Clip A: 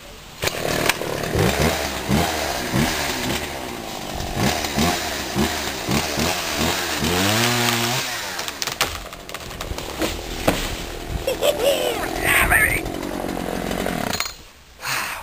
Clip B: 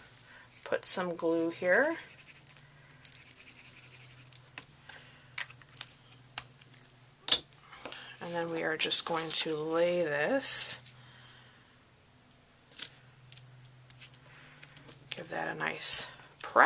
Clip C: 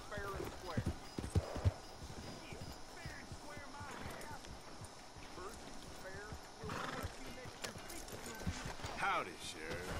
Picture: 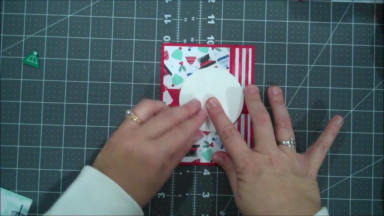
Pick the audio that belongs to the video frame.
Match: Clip B